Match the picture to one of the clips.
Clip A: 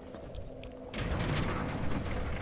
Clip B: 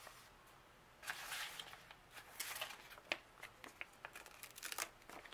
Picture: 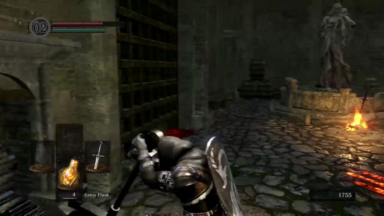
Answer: A